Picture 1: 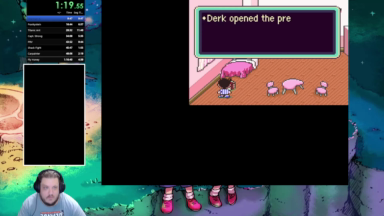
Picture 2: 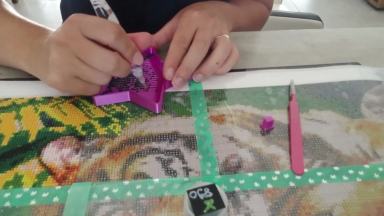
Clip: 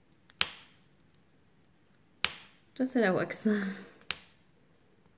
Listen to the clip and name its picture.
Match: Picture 2